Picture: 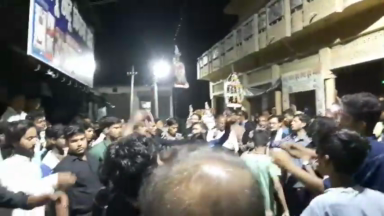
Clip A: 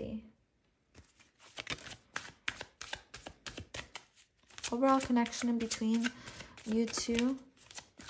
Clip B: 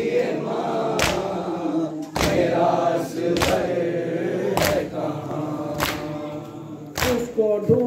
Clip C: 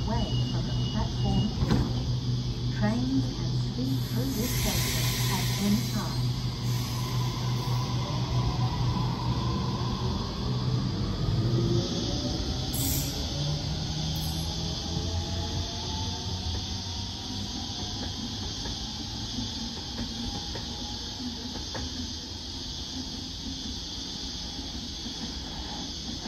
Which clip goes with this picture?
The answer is B